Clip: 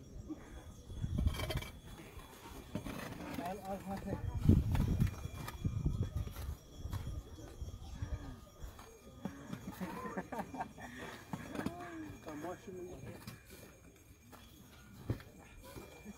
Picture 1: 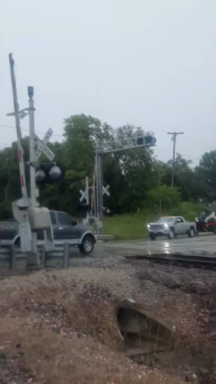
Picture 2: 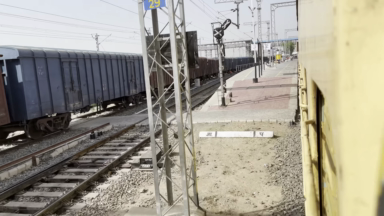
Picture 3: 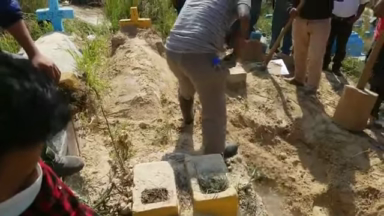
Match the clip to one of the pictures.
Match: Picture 3